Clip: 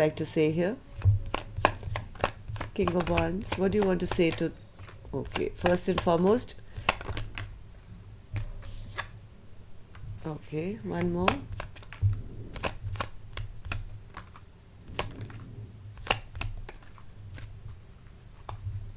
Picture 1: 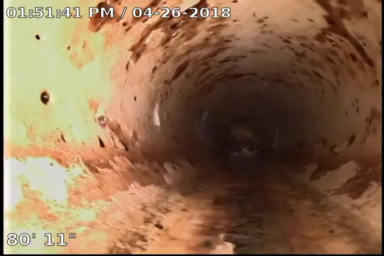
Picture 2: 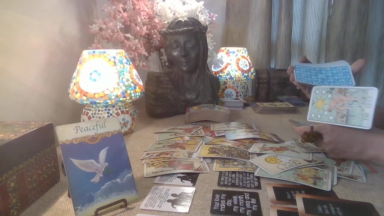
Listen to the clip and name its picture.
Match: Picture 2